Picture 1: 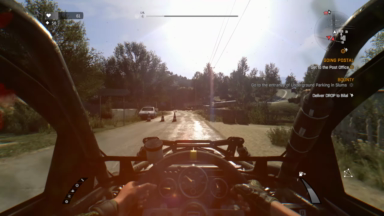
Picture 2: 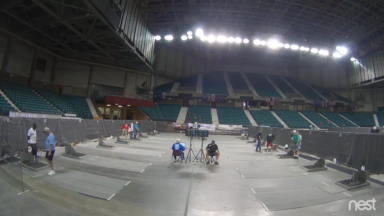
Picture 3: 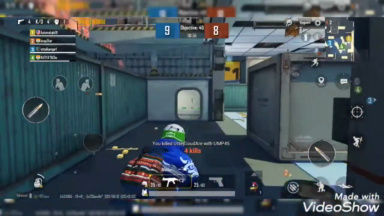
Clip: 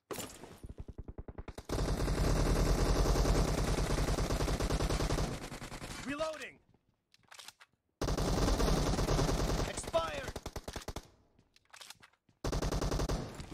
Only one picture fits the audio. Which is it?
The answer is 3